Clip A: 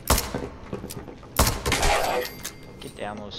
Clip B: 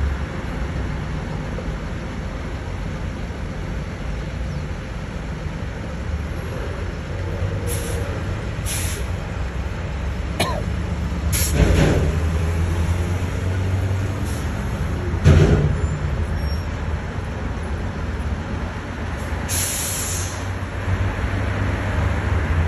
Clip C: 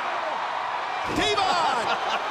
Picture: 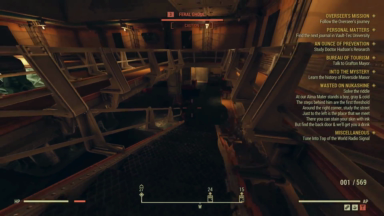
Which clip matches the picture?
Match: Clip A